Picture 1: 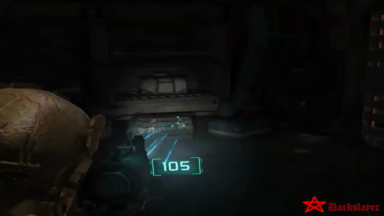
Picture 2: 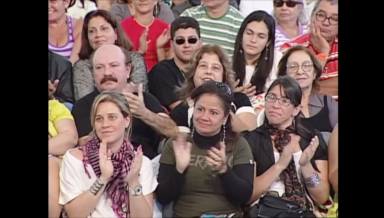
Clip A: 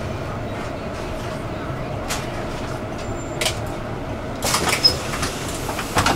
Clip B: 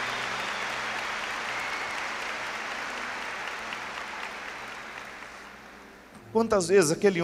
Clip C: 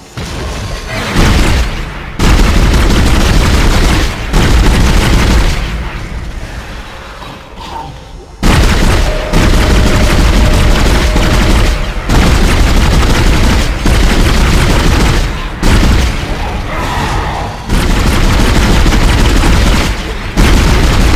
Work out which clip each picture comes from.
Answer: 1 C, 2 B